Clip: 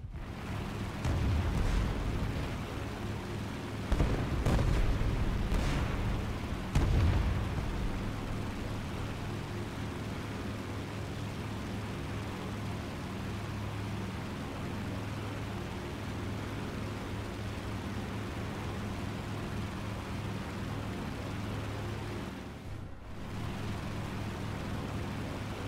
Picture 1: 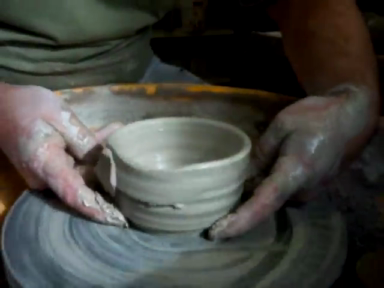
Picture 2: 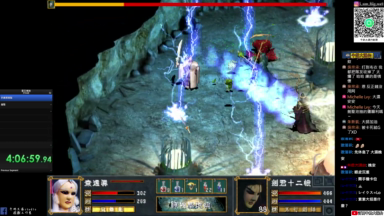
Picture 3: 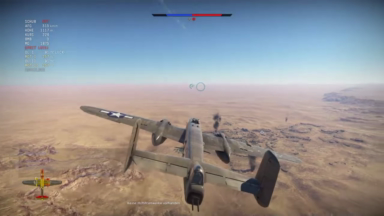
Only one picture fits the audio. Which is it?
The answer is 3